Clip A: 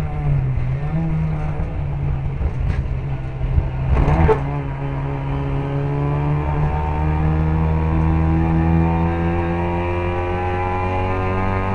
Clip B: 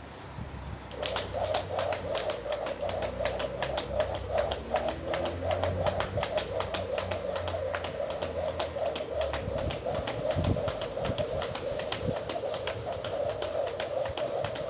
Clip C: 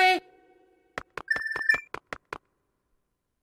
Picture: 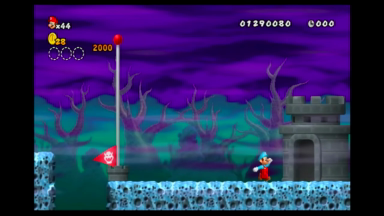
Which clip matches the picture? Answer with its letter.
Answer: C